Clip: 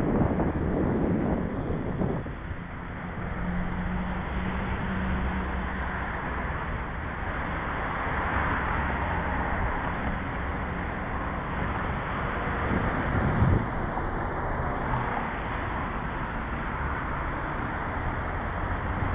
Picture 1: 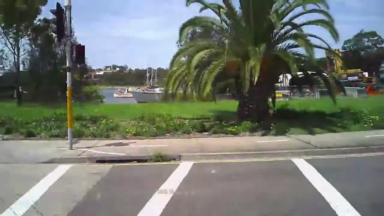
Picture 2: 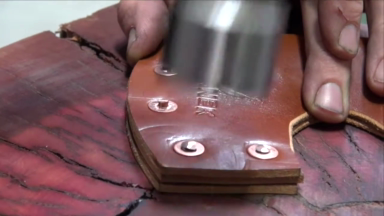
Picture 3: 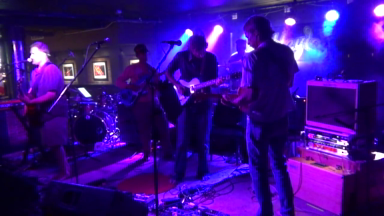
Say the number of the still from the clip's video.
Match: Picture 1